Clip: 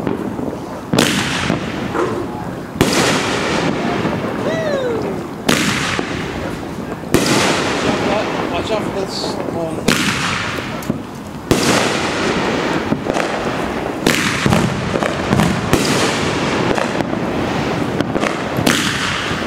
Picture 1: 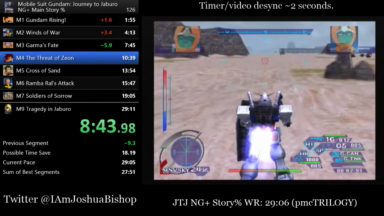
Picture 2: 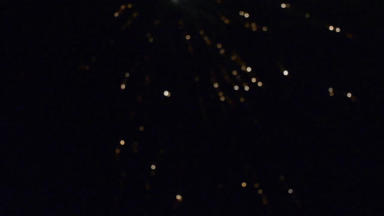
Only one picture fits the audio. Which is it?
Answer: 2